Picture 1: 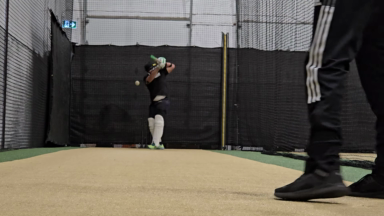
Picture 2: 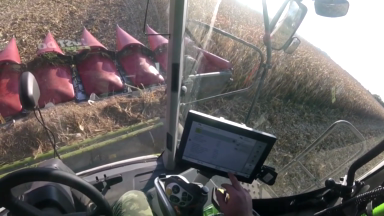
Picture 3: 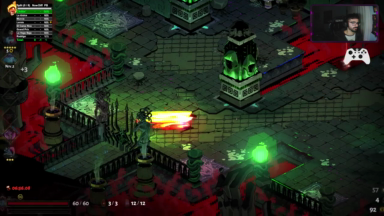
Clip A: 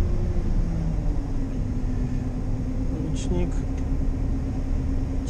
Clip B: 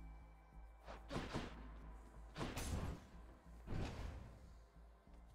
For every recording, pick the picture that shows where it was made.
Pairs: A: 2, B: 3